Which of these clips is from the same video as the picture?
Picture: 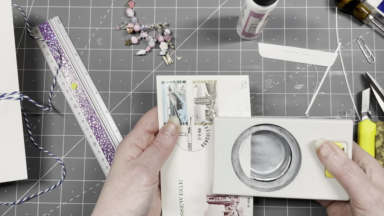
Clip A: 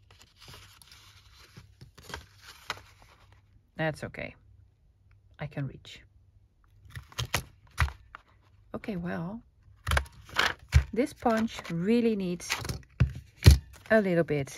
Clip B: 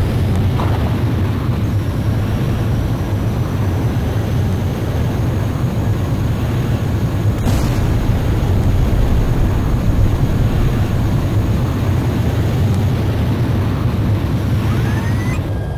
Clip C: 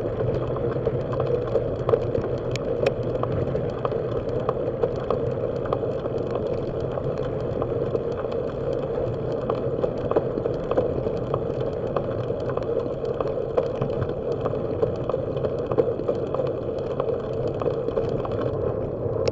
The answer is A